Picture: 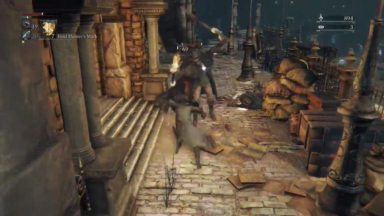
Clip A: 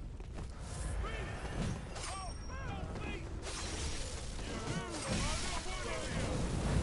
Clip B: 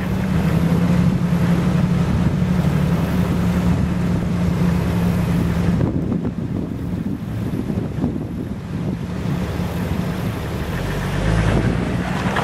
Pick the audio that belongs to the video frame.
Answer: A